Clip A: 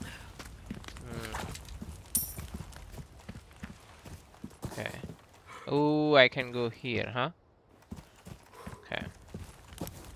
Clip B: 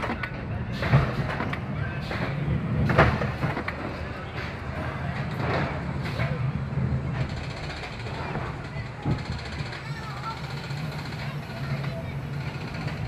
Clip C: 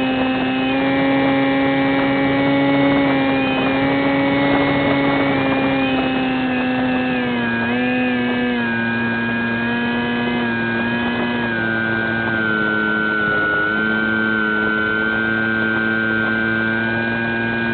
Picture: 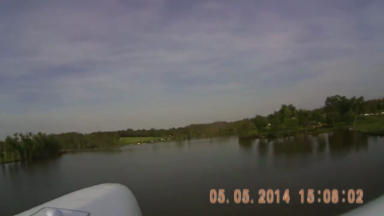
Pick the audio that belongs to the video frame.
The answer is C